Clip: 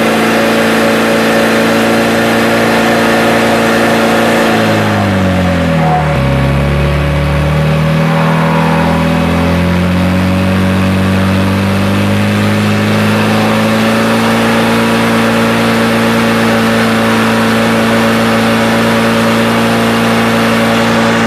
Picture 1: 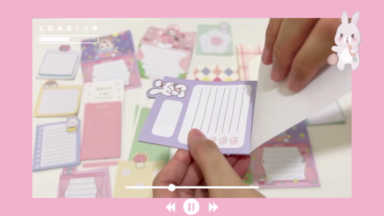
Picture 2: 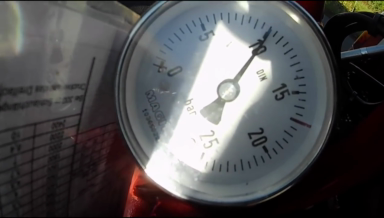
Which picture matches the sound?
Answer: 2